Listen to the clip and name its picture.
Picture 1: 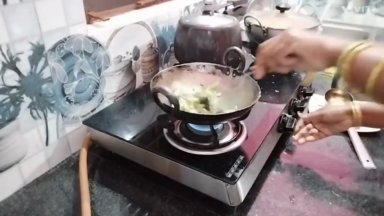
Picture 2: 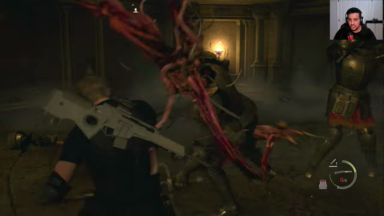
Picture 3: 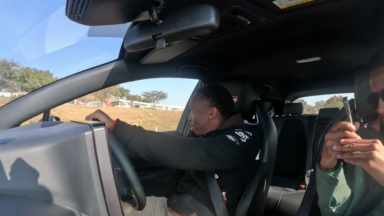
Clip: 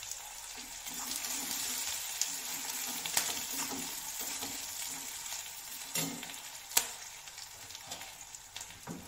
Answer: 1